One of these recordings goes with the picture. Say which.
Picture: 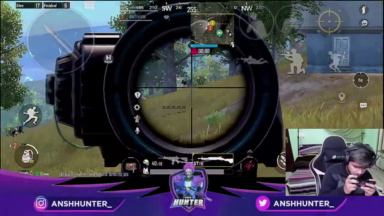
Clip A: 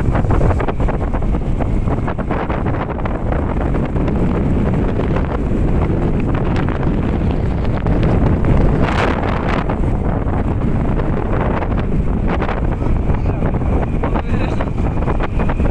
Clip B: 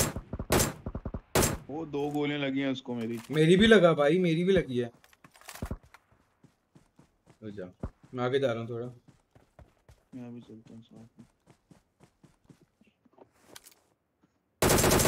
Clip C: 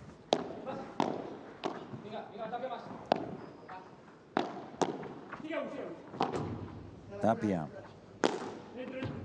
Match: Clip B